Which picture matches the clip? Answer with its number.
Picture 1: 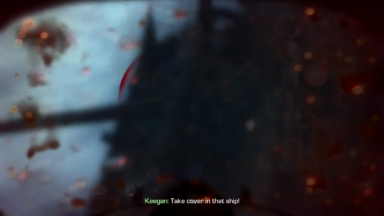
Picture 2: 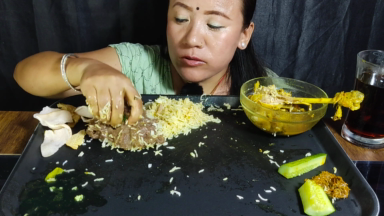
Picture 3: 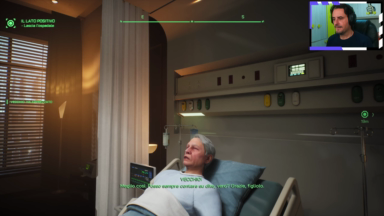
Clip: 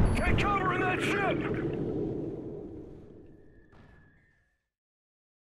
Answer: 1